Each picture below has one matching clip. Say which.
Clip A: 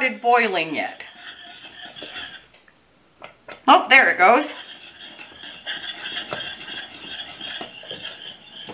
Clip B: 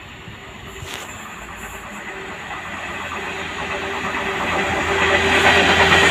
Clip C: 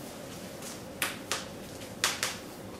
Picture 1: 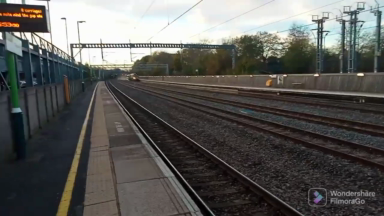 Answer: B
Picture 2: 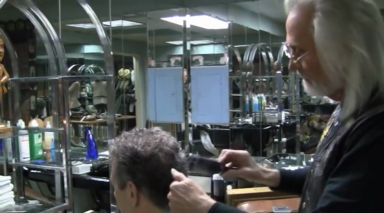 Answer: C